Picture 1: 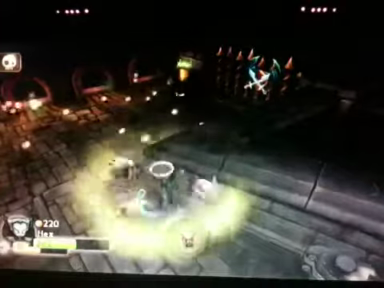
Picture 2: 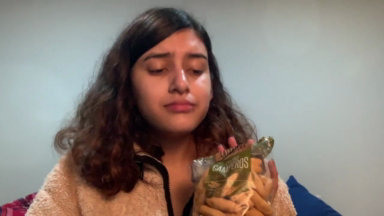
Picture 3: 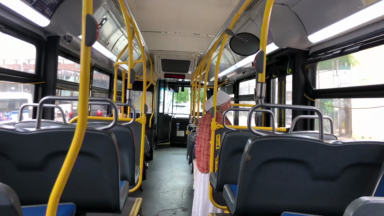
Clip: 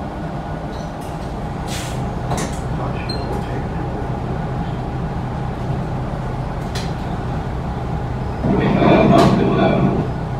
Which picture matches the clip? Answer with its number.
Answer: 3